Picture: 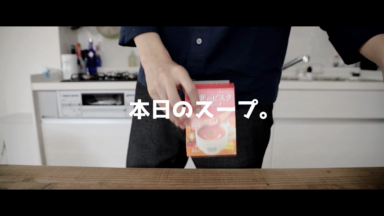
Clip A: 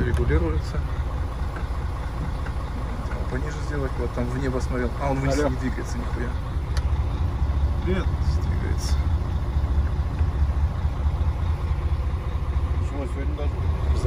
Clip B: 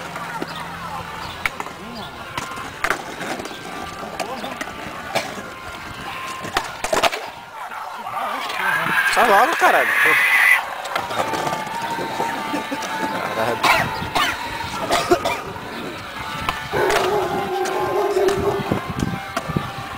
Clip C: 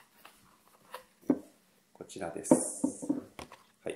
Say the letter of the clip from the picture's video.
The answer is C